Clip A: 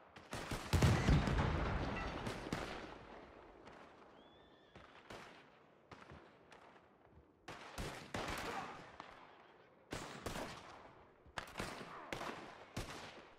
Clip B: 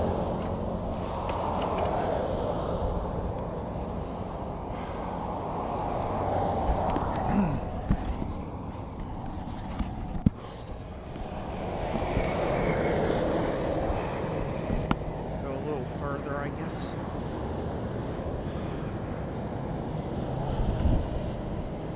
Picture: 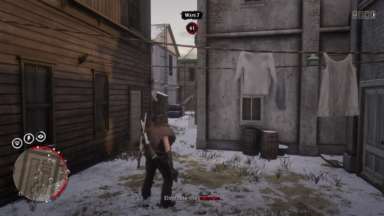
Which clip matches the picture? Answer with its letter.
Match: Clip A